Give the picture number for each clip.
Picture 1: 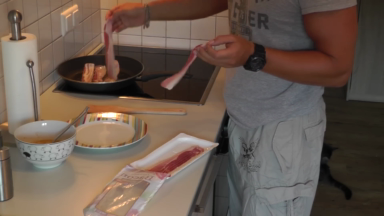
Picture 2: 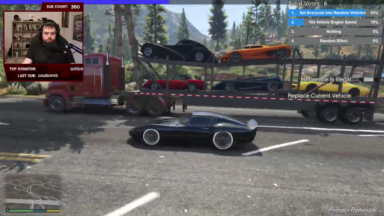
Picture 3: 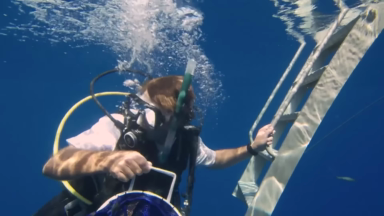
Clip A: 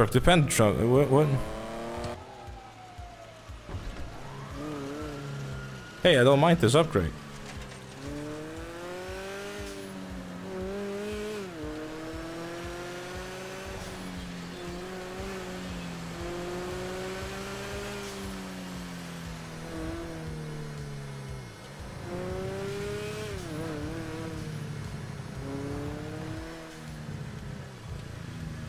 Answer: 2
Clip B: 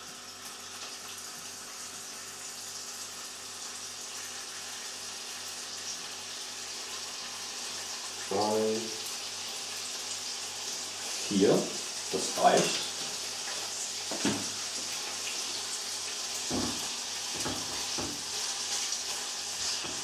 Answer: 1